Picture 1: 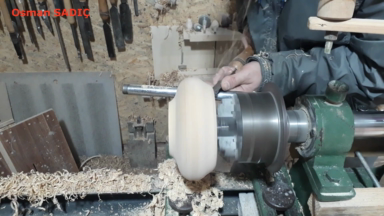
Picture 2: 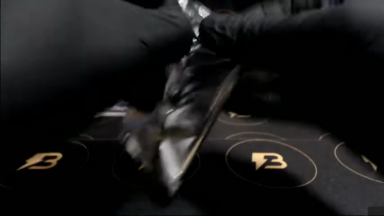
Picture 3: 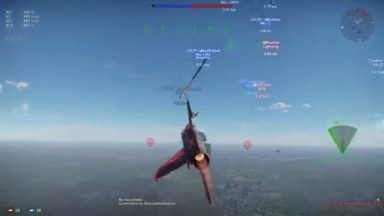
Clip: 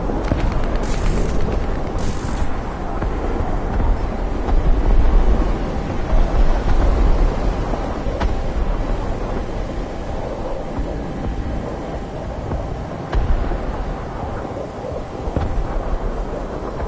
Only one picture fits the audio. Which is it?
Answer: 3